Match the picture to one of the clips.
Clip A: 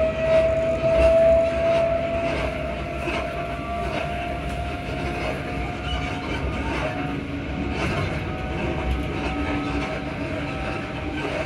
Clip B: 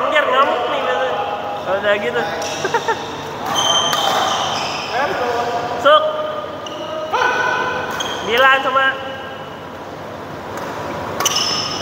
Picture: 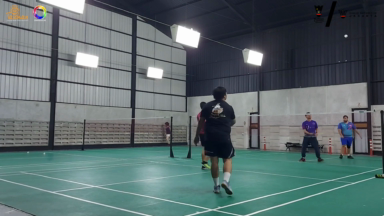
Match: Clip B